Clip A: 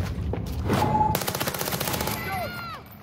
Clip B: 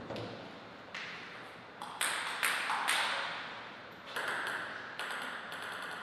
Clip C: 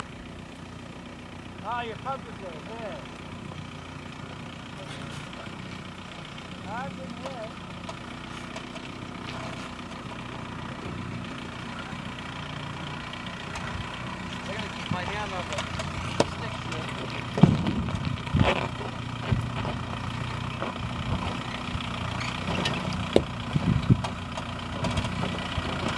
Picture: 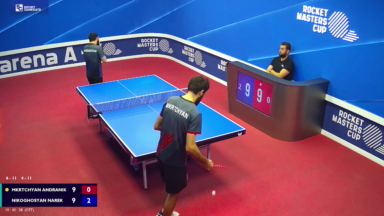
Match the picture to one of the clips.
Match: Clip B